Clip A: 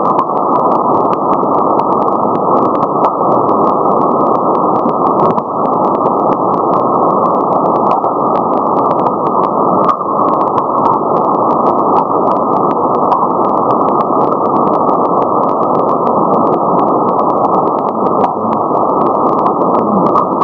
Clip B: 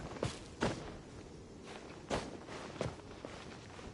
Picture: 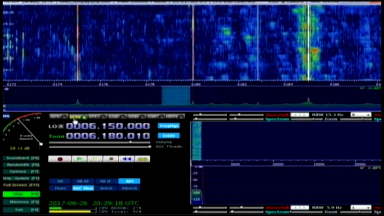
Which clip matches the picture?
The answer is A